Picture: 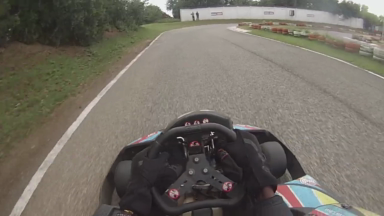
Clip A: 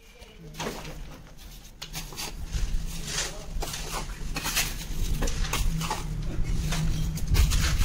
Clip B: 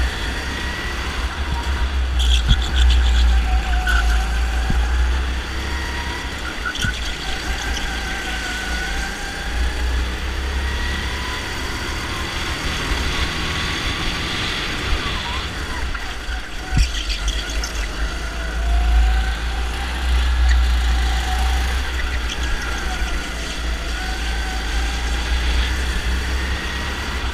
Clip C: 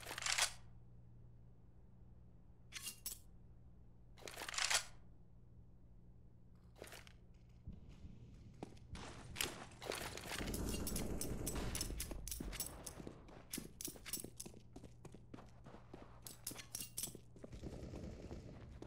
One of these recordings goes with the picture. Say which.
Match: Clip B